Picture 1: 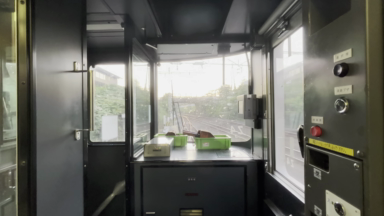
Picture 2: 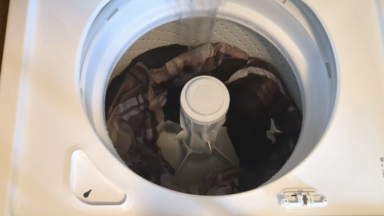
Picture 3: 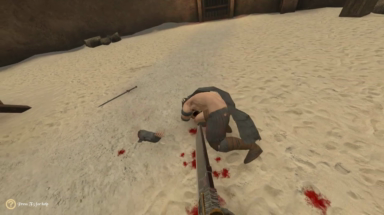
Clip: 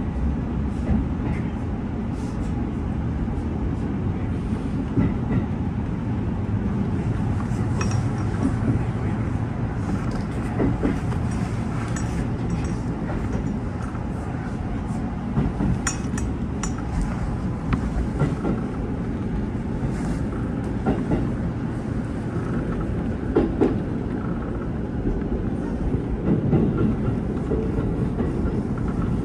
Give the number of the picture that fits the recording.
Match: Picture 1